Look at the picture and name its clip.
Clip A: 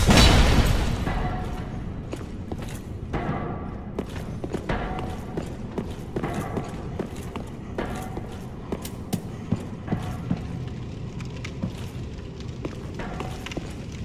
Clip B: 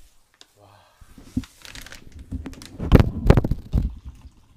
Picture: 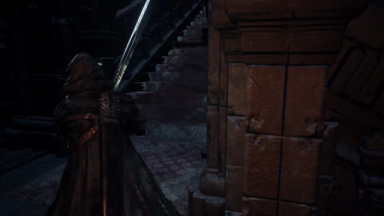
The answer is A